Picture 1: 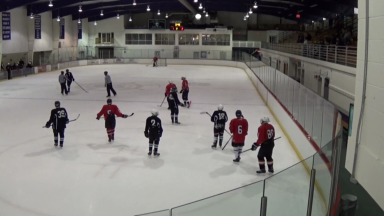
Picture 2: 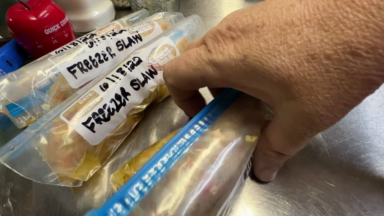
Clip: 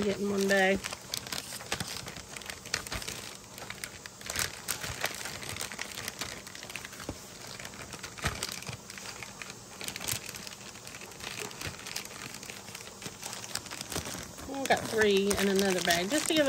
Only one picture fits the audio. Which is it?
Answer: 2